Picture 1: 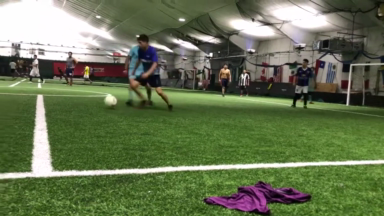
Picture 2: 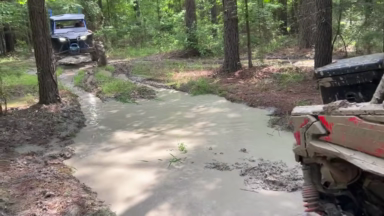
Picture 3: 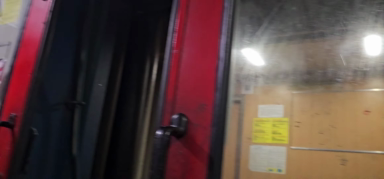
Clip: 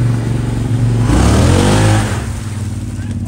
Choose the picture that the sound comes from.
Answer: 2